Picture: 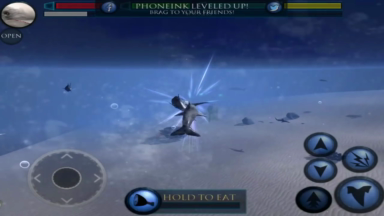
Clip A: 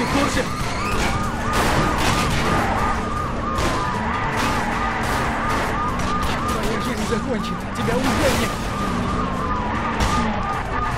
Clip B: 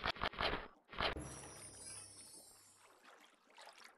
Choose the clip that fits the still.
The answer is B